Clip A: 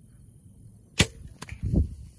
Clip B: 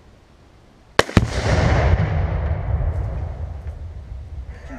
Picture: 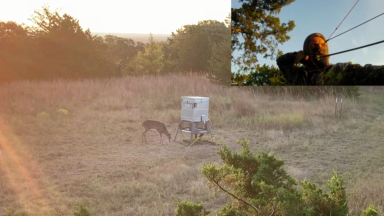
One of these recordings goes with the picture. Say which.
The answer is A